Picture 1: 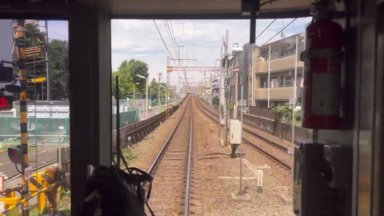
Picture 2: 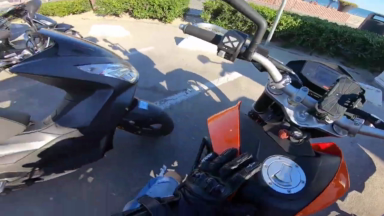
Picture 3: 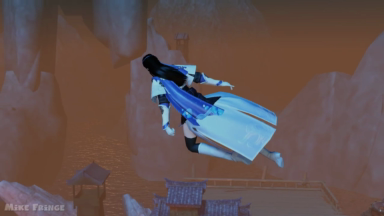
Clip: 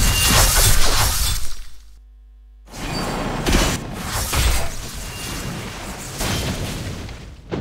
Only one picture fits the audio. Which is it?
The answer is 3